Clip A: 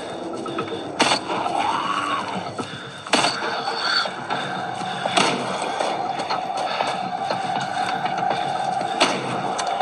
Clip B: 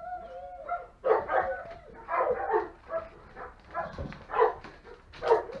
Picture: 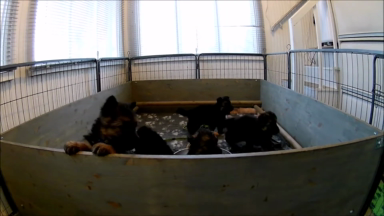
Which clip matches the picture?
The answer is B